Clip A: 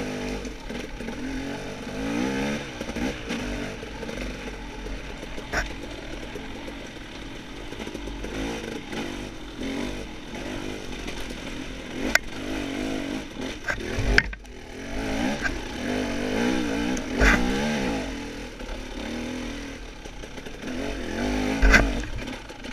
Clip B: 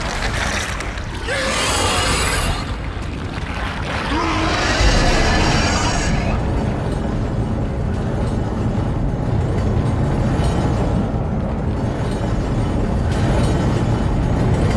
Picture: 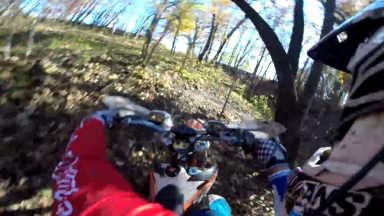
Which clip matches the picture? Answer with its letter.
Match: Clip A